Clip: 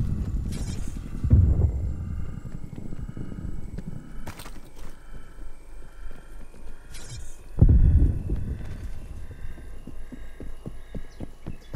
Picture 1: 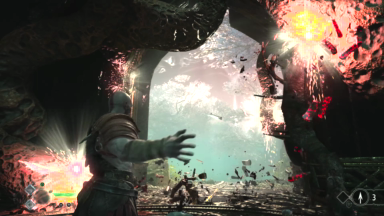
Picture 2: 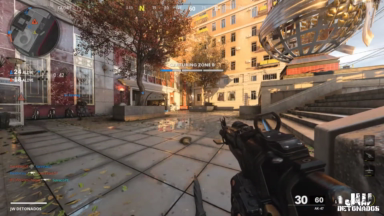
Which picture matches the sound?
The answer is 2